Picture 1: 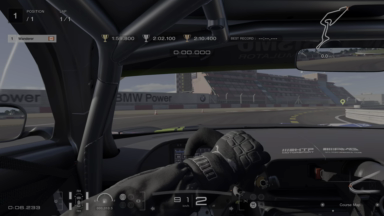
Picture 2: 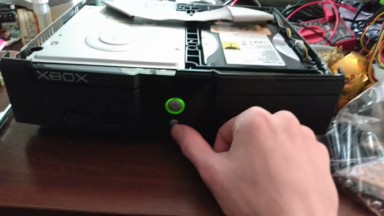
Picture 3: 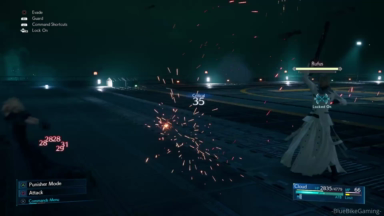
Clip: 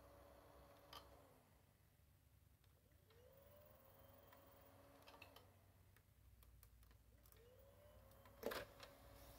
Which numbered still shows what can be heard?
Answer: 2